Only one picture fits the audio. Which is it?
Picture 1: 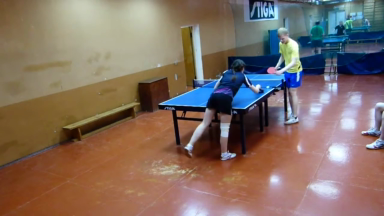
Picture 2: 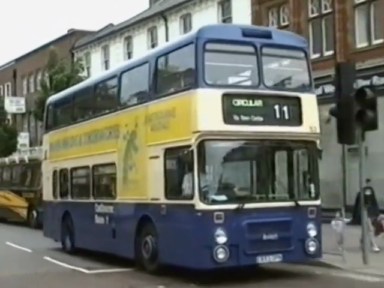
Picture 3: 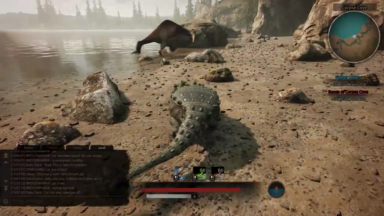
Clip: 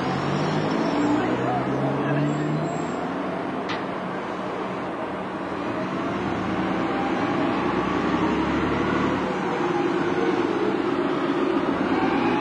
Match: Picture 2